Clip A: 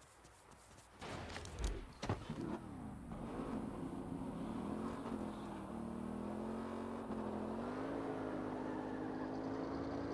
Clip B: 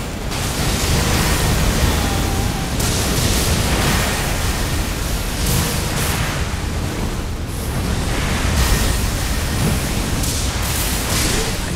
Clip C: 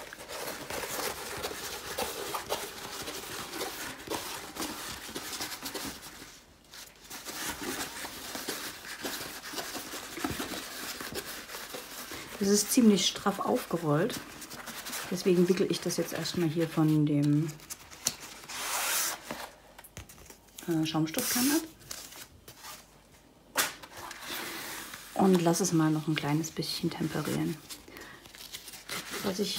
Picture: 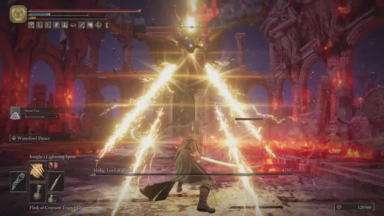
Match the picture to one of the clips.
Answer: B